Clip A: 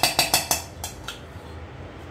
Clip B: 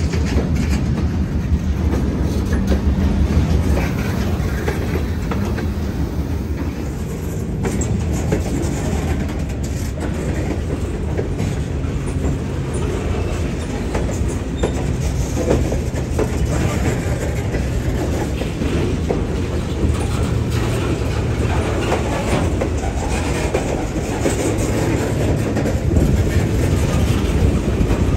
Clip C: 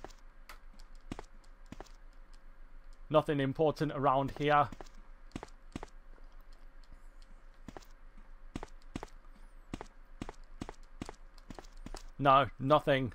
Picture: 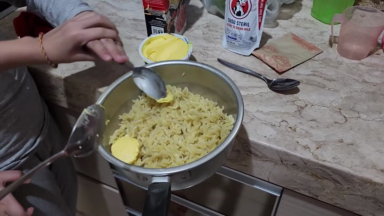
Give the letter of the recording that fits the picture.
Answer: A